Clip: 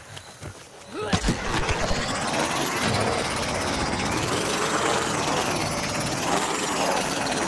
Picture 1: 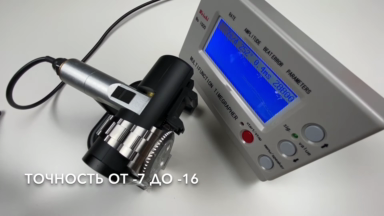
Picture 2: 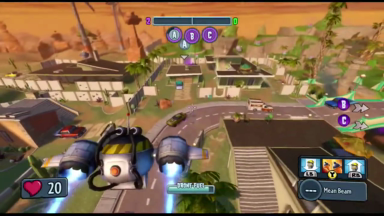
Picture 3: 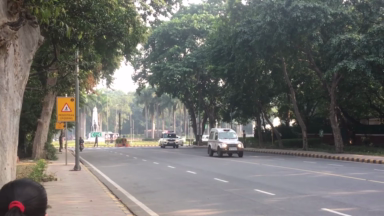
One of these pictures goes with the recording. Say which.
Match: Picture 2